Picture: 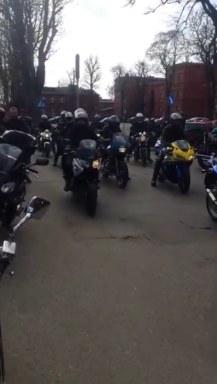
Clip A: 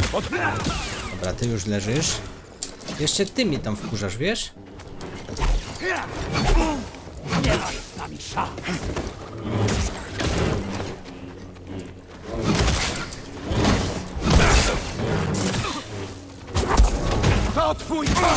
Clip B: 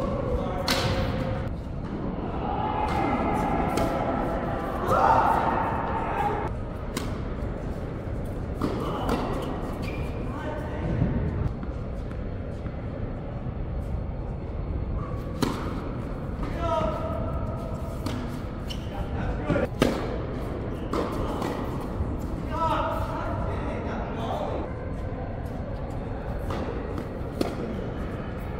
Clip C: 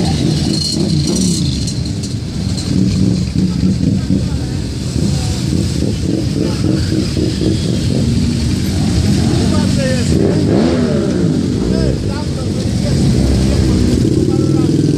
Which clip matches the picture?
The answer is C